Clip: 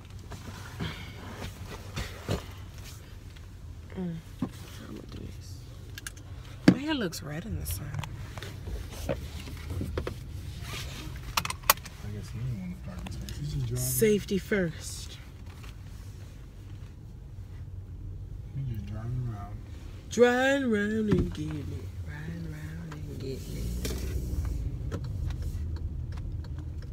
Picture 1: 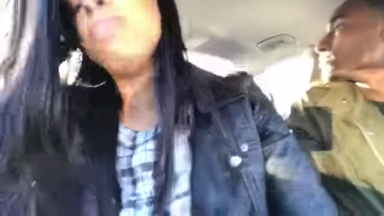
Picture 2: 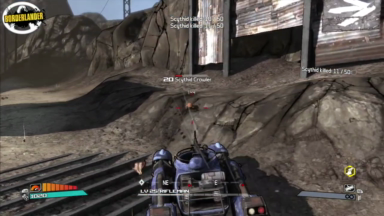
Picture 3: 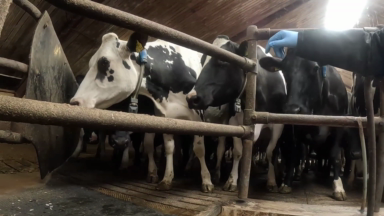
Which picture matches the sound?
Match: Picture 1